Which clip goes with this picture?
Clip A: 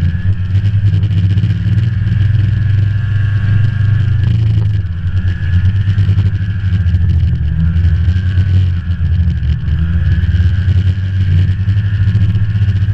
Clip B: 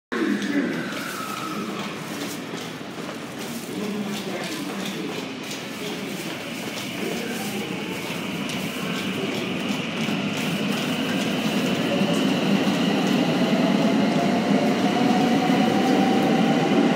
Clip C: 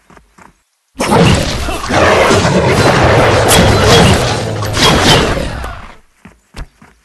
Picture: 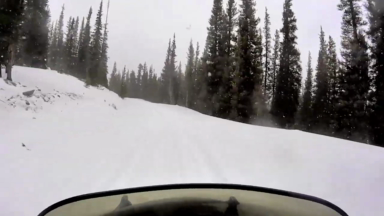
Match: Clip A